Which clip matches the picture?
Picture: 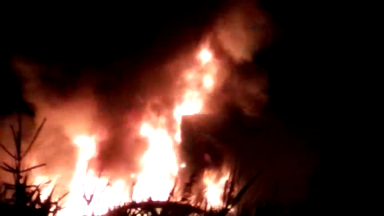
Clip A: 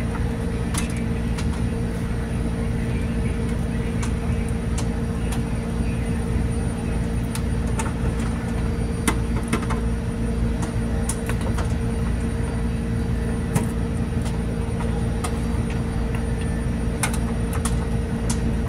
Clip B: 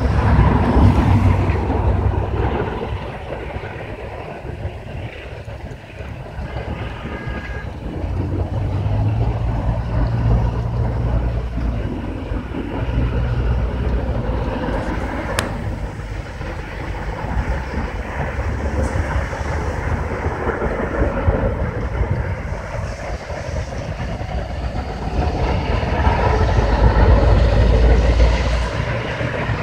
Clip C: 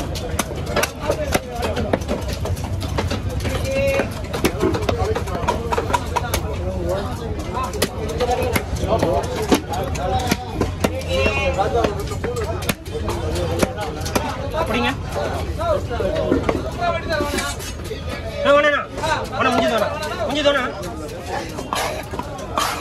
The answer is B